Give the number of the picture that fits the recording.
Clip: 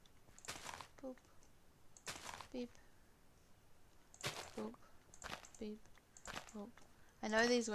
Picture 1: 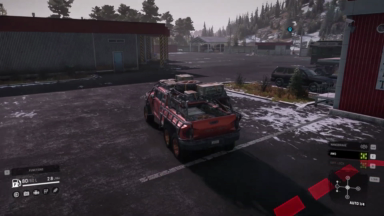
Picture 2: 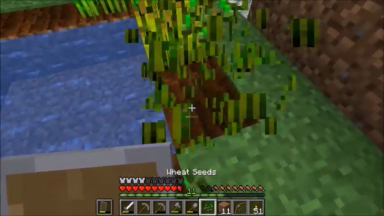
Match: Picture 2